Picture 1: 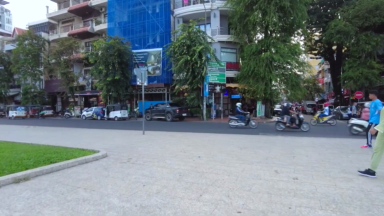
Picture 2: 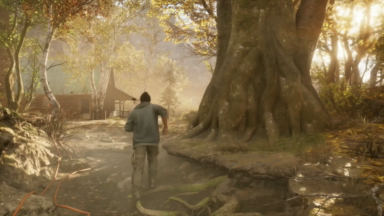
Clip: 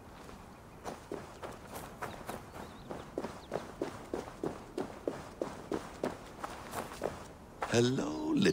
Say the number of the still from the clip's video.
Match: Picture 2